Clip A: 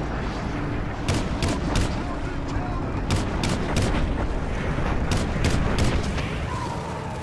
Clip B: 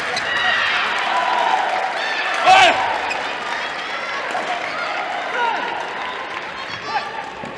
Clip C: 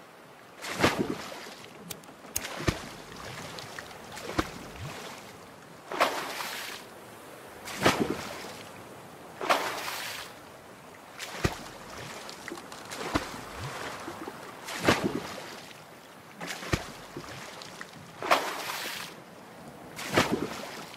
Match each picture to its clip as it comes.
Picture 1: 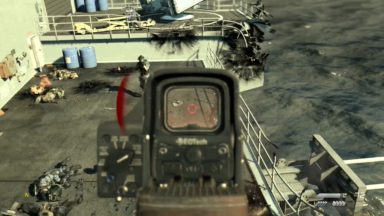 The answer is A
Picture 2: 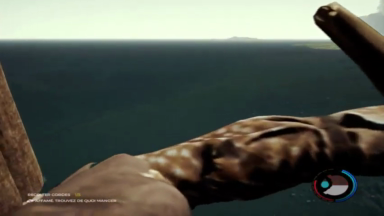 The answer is C